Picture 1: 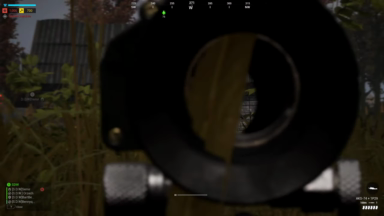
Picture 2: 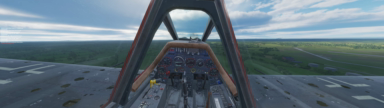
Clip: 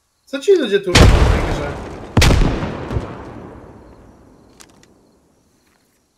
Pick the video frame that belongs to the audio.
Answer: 1